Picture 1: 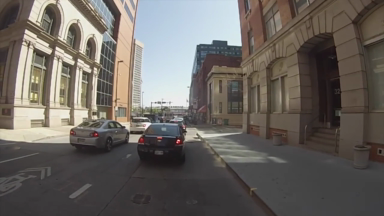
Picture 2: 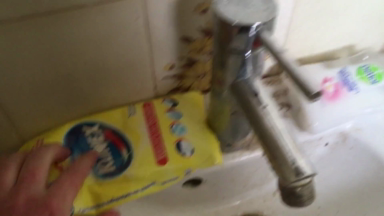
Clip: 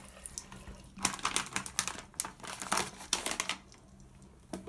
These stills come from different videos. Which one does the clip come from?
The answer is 2